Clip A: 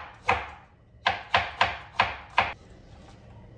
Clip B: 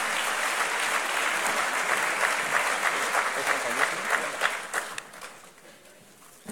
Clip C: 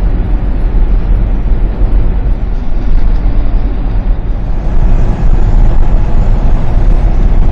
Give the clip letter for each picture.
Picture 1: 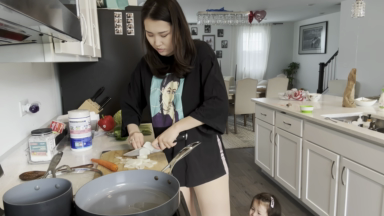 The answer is A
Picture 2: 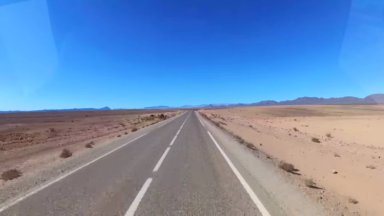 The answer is C